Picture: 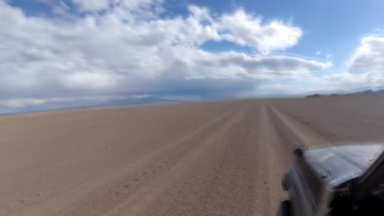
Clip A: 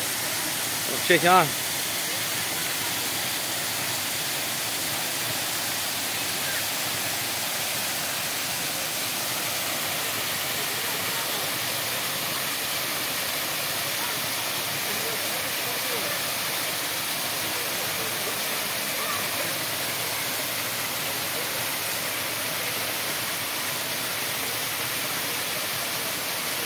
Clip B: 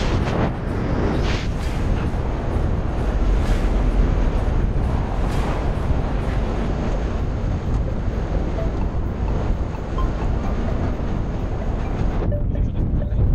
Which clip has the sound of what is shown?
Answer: B